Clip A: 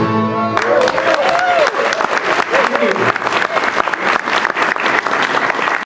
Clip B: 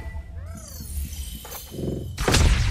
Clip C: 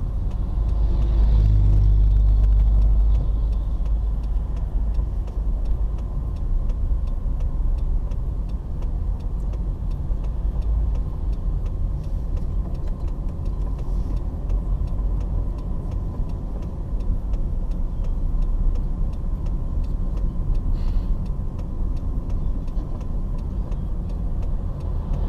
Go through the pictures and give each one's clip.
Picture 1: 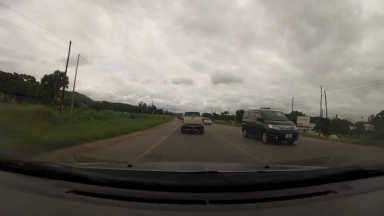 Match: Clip C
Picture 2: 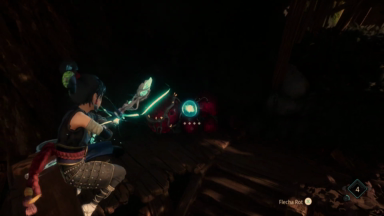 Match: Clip B